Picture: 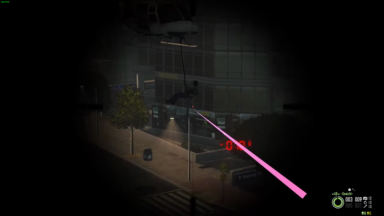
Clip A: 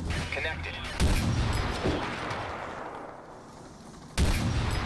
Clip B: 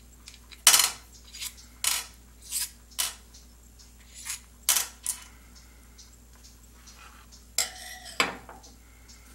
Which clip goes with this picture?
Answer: A